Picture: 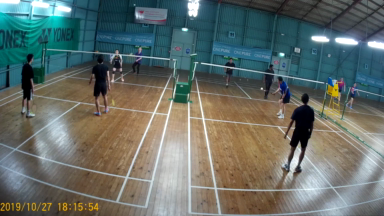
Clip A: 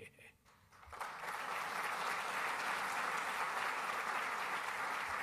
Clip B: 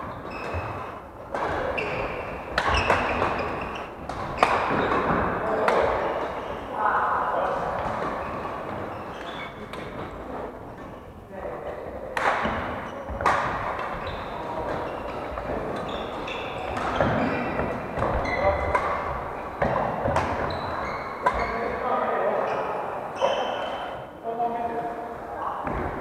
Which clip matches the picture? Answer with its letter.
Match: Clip B